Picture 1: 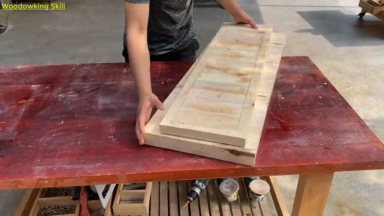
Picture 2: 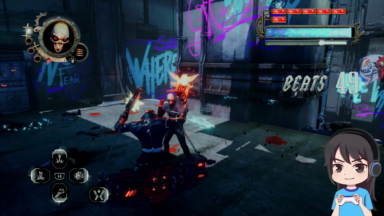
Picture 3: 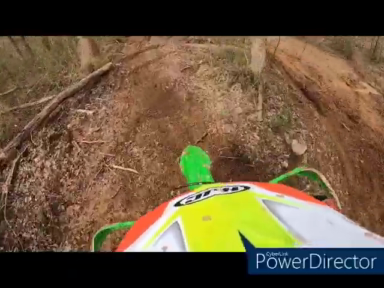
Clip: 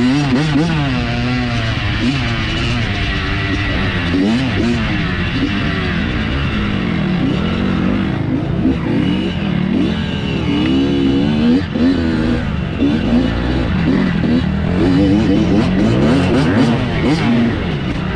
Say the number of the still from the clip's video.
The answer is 3